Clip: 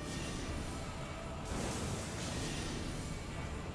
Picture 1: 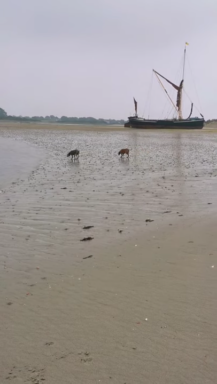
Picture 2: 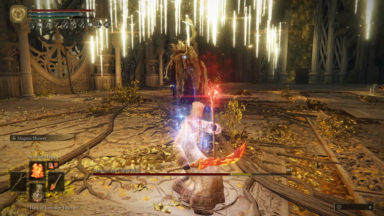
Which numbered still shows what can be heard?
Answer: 2